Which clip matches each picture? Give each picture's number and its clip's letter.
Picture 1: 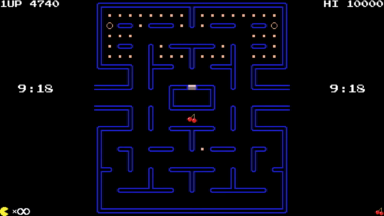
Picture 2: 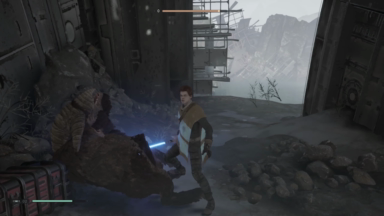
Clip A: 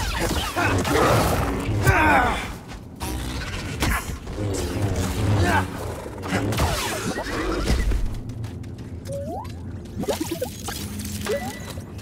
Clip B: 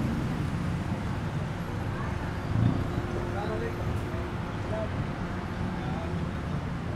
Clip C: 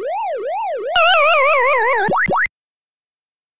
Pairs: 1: C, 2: A